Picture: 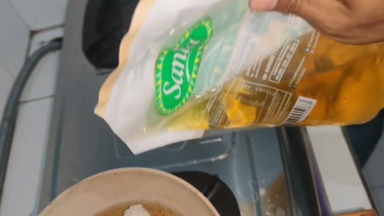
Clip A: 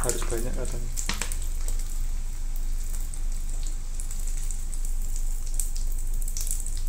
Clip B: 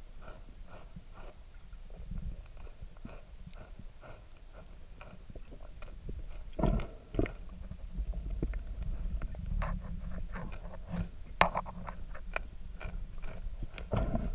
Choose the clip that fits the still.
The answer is A